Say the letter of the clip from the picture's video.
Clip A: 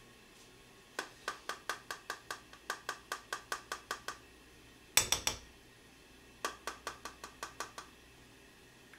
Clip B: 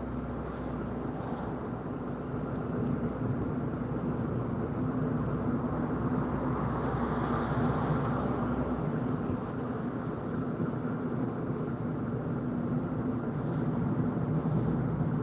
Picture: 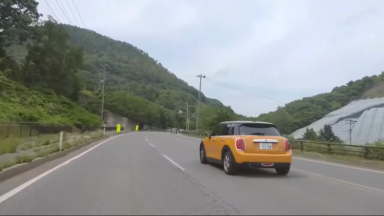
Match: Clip B